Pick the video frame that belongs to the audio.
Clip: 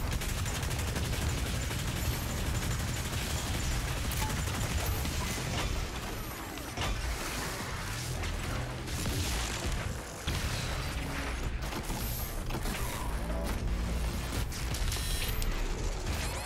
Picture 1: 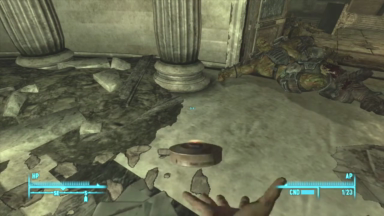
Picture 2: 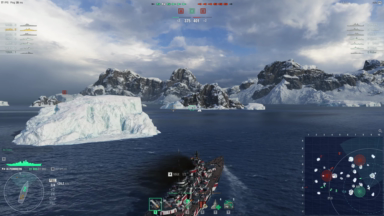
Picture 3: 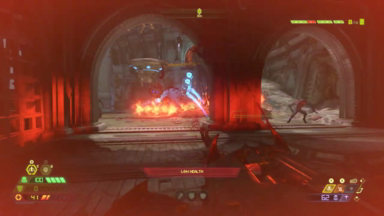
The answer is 3